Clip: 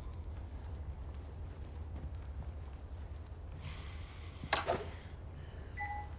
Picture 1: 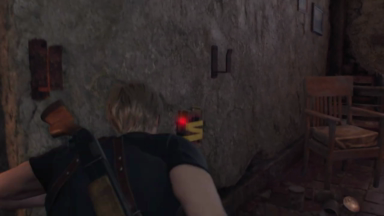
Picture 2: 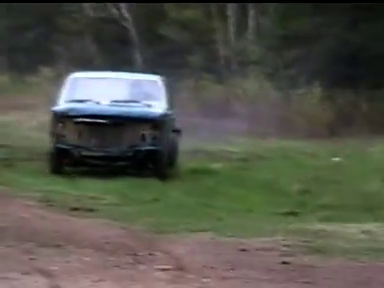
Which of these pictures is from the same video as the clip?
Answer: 1